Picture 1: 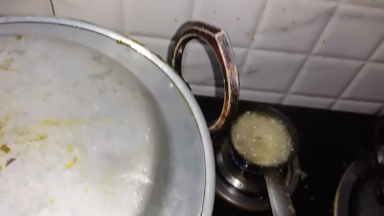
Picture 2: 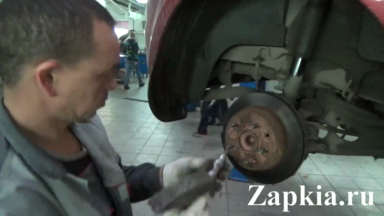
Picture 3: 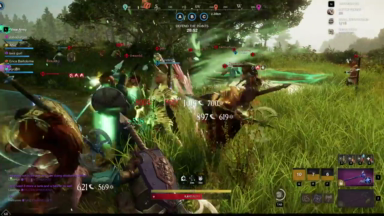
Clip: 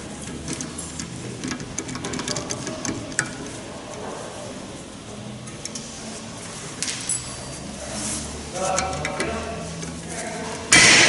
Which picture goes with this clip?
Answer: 2